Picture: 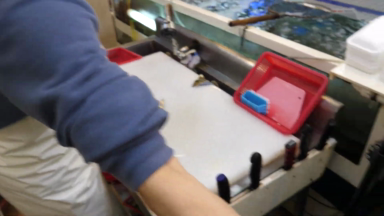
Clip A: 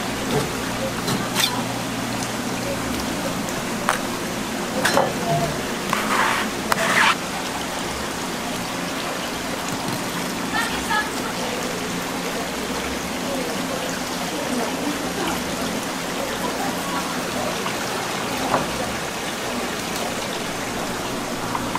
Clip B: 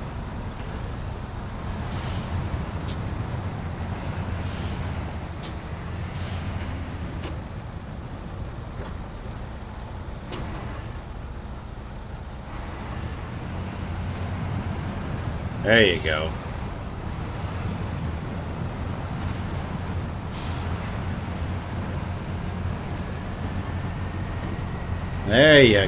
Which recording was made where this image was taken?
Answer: A